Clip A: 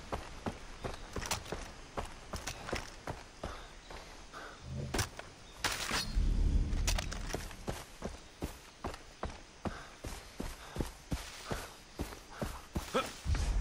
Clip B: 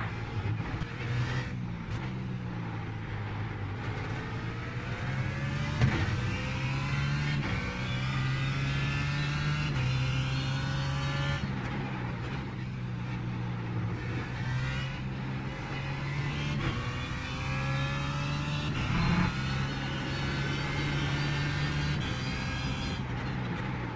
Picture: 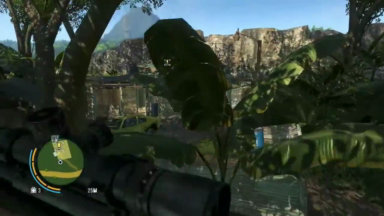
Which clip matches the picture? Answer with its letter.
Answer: A